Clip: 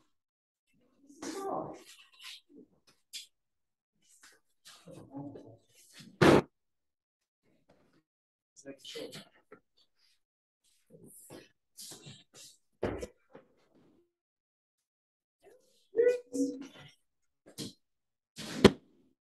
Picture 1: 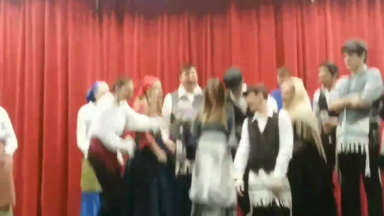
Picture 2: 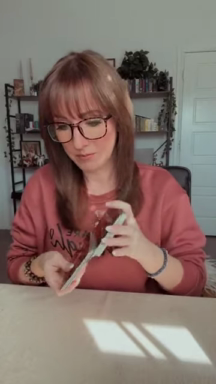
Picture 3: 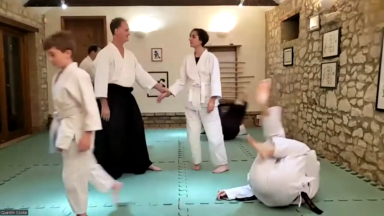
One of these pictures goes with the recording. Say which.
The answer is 3